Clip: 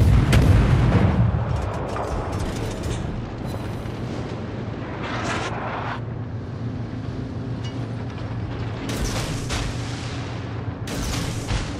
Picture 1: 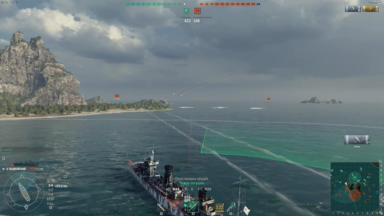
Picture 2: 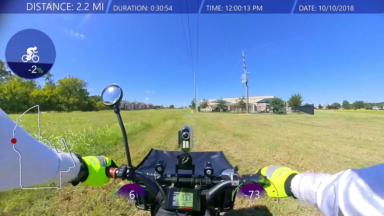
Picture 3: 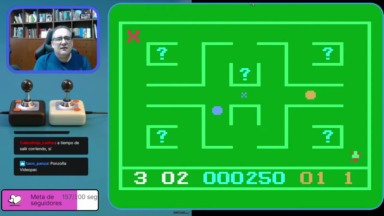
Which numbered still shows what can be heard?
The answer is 1